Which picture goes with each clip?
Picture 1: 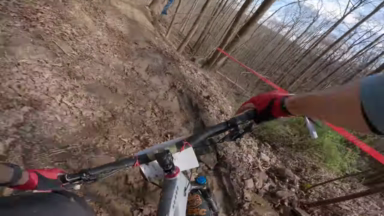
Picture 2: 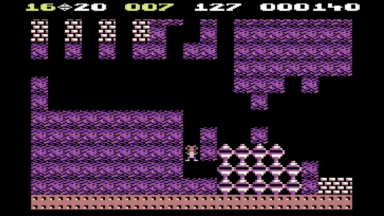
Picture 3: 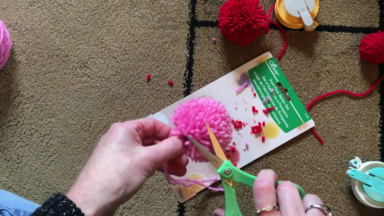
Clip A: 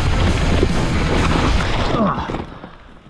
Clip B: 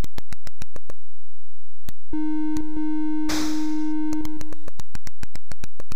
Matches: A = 1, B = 2